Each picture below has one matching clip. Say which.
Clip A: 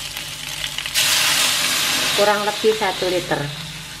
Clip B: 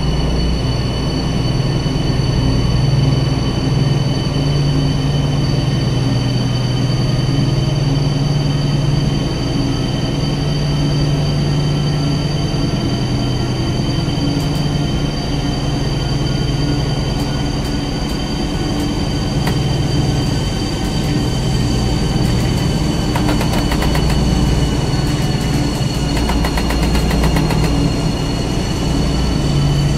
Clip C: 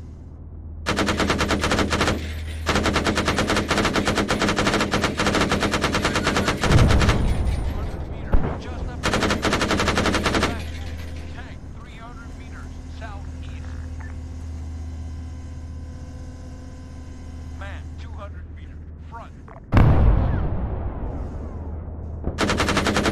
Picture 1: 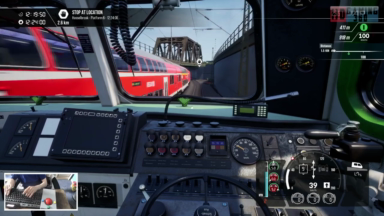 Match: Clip B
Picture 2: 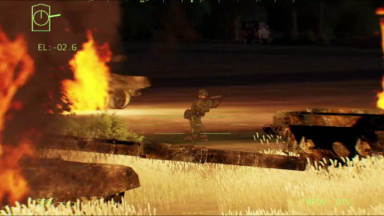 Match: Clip C